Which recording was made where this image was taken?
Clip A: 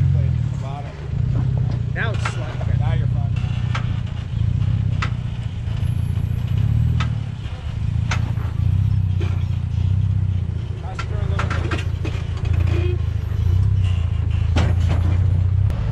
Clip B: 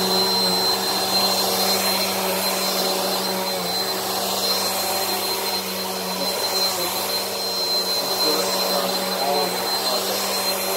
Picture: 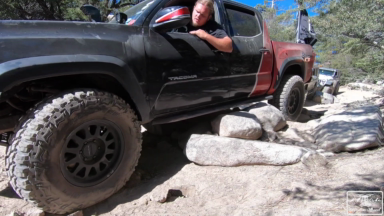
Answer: A